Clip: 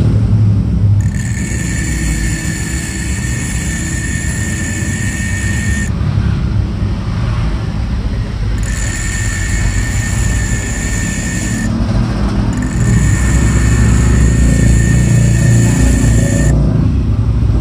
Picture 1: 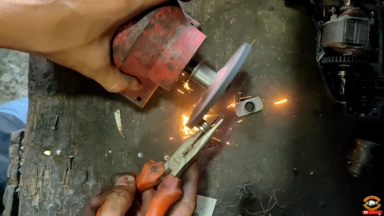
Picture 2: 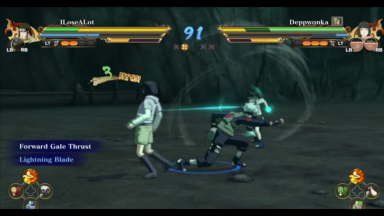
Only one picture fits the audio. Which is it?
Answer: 1